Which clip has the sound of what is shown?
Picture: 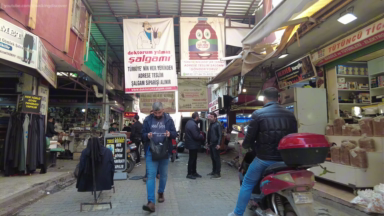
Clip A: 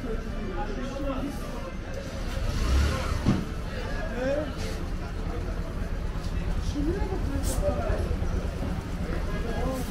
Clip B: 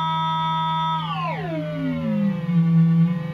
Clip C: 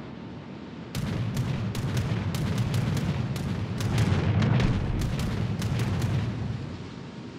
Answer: A